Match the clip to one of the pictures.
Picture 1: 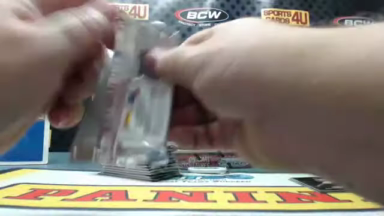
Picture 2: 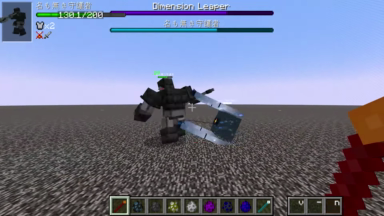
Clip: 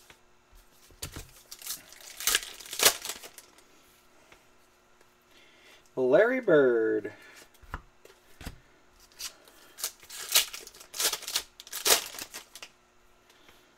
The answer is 1